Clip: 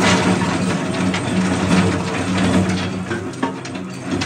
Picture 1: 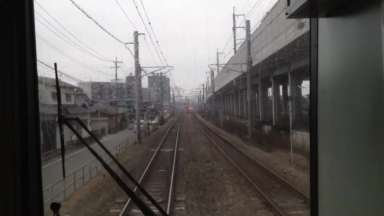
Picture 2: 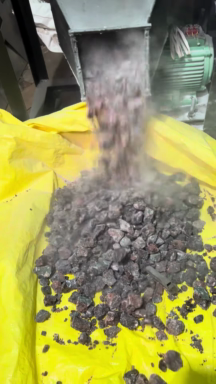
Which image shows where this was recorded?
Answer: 2